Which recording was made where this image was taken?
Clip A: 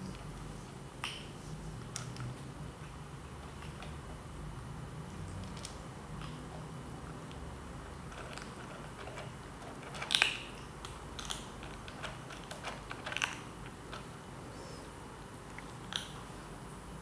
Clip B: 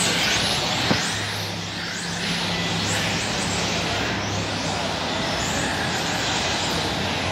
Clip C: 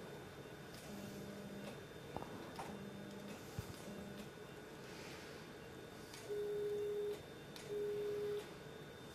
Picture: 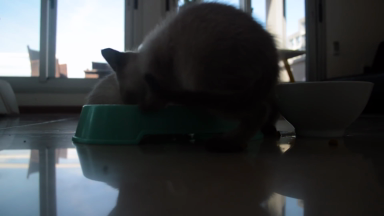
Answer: A